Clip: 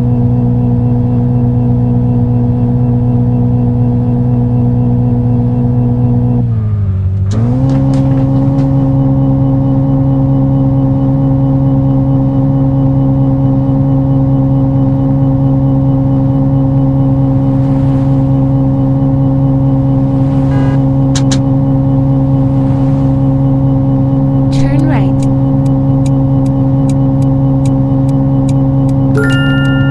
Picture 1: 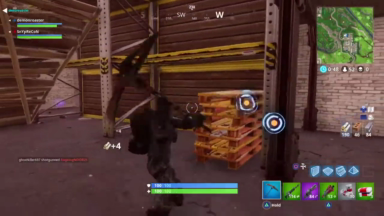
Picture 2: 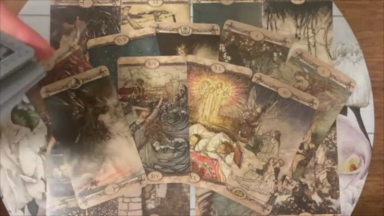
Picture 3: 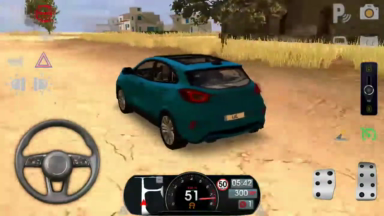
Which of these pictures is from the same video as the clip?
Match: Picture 3